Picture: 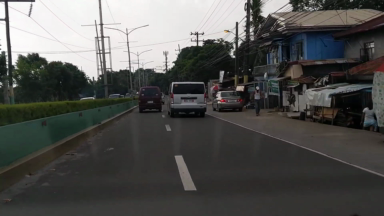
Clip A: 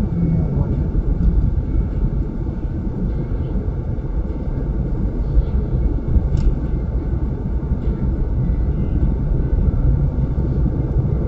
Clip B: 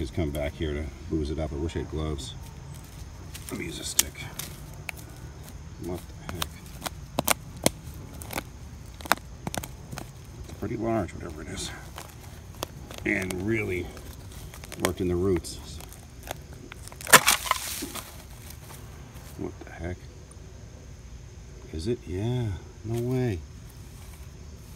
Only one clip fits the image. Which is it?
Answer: A